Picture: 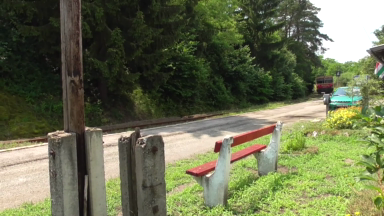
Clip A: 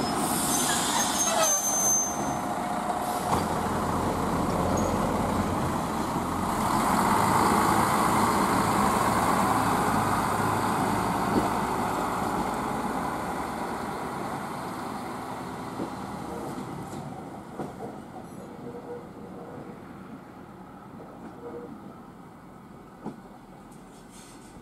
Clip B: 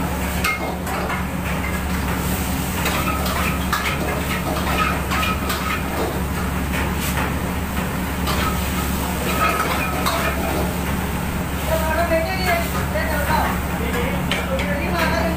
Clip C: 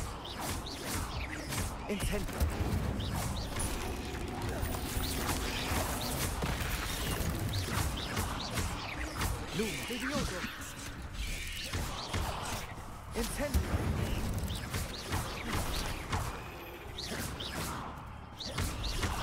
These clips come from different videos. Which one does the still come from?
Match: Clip A